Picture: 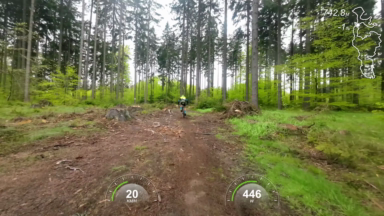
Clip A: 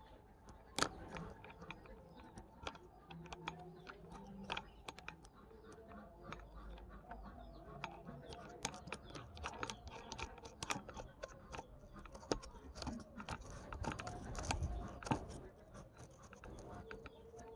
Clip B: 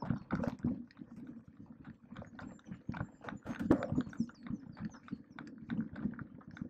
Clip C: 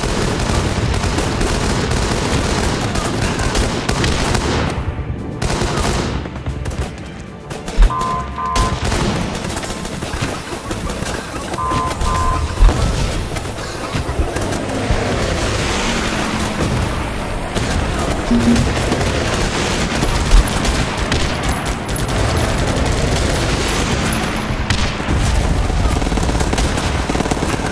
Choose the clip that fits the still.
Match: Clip B